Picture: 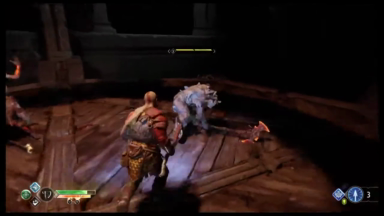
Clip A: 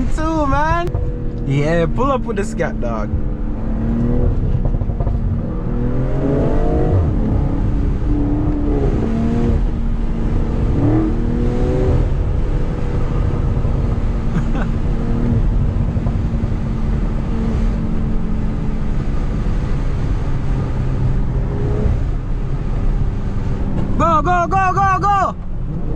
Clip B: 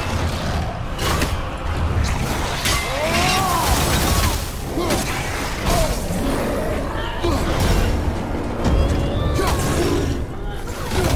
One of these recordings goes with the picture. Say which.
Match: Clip B